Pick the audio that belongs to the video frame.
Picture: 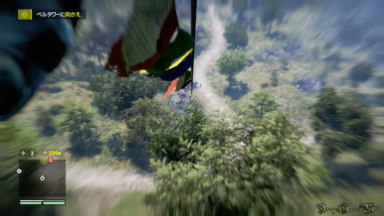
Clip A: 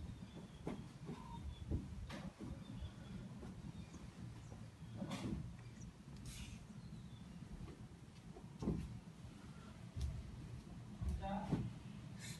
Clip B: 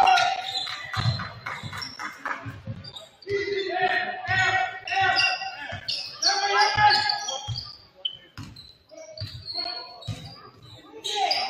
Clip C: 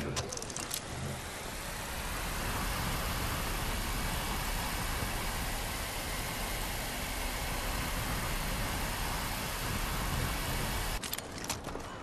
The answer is C